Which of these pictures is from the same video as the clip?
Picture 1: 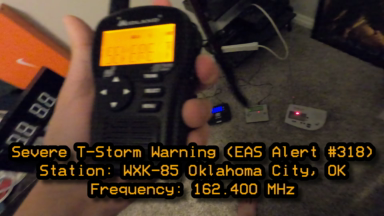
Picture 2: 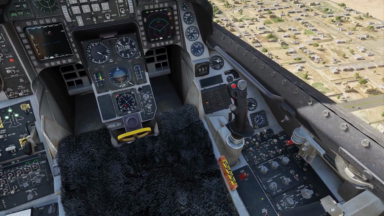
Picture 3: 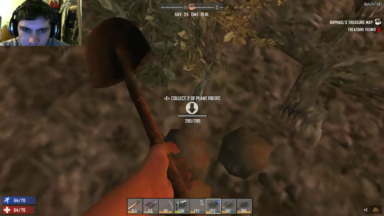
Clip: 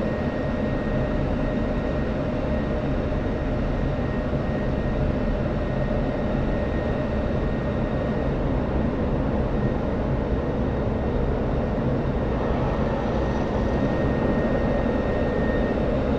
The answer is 2